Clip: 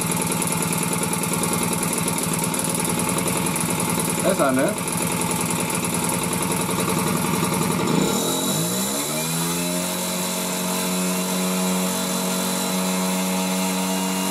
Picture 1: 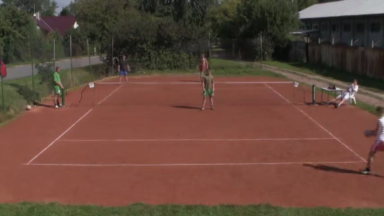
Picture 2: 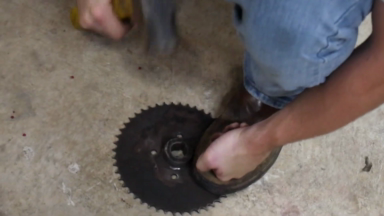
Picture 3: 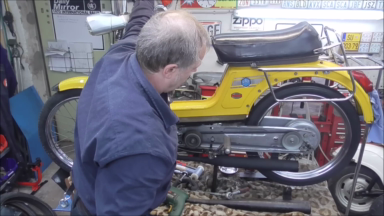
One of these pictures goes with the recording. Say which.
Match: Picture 3